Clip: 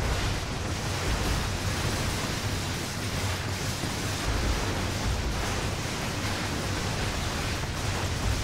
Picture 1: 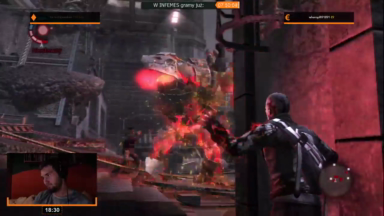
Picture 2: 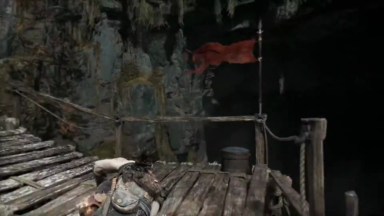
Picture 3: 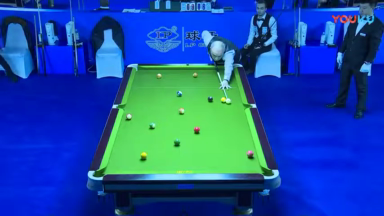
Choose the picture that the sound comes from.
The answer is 1